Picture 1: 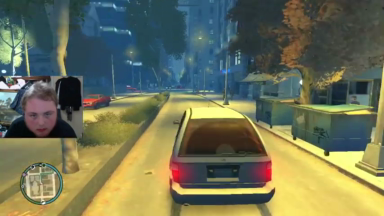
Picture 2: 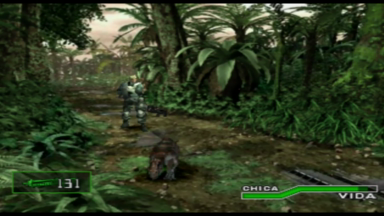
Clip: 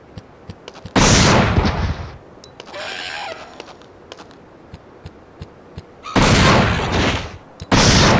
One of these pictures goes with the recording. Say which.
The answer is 2